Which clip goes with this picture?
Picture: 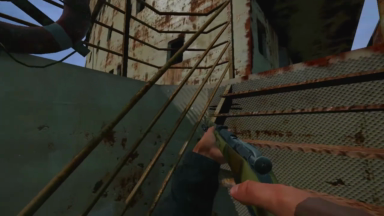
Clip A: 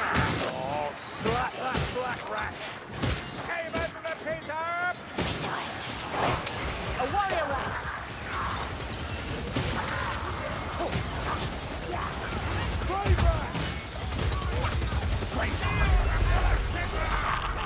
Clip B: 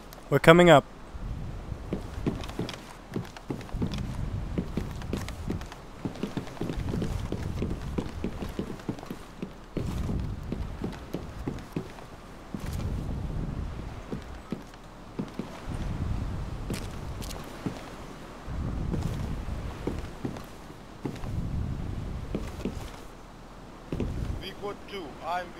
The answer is B